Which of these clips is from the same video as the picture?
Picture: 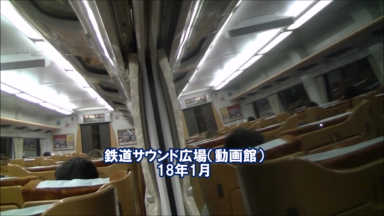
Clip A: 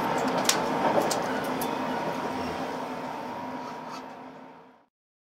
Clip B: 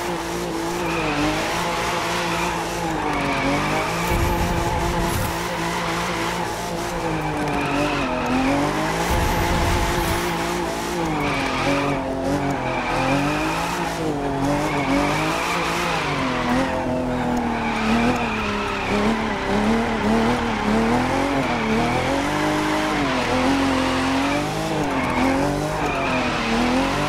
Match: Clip A